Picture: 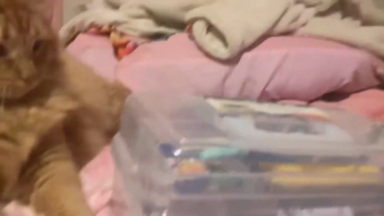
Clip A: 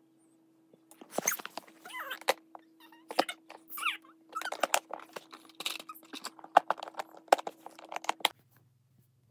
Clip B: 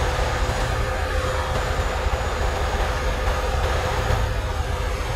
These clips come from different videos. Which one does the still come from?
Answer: A